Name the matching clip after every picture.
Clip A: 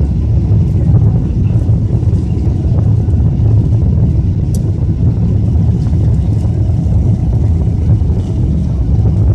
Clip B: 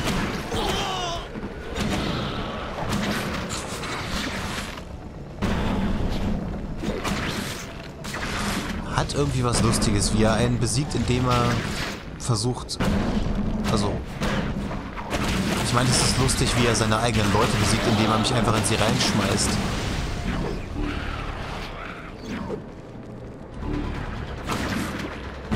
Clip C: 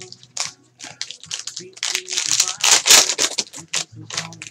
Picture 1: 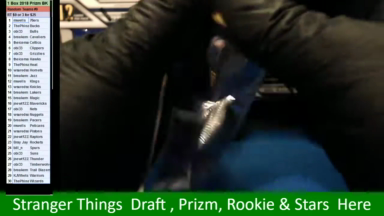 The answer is C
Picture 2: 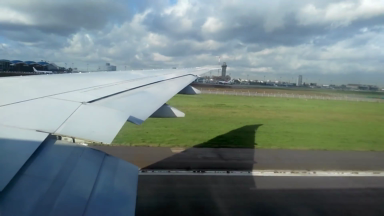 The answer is A